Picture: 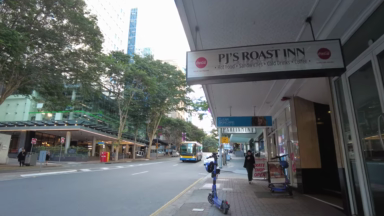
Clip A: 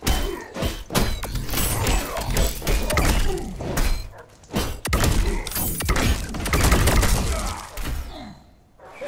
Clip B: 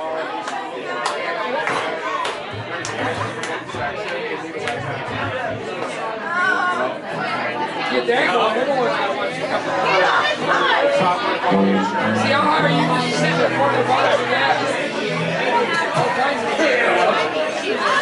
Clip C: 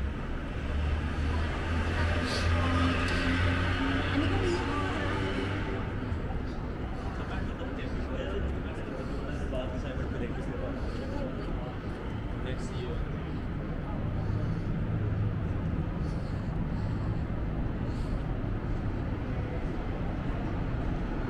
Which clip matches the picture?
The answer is C